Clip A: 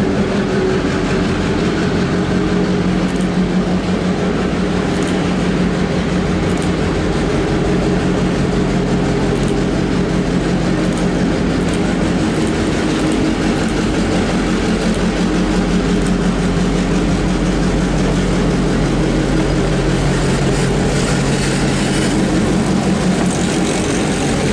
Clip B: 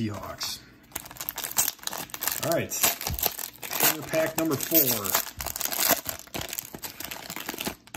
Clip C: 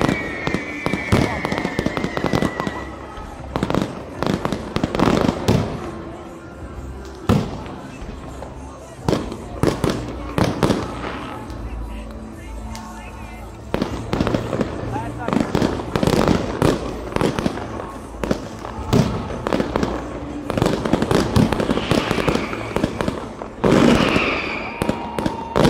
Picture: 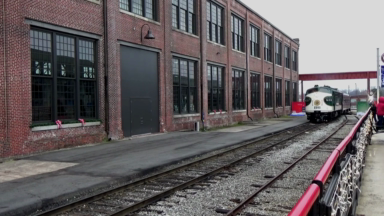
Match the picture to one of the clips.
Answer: A